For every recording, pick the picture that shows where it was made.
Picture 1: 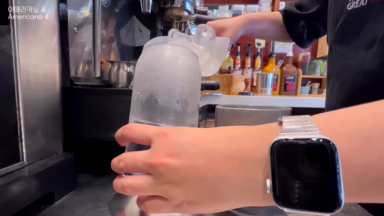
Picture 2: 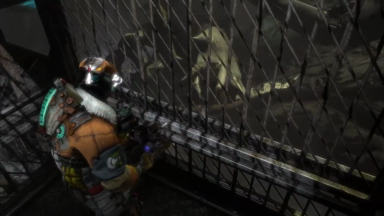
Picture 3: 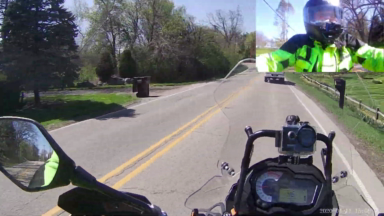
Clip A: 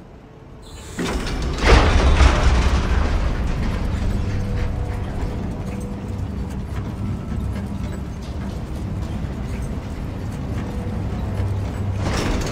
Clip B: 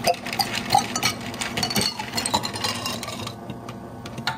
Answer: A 2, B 1